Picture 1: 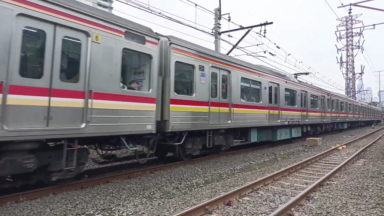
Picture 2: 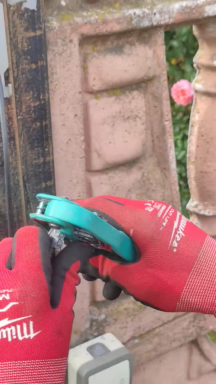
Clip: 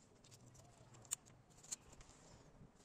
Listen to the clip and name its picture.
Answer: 2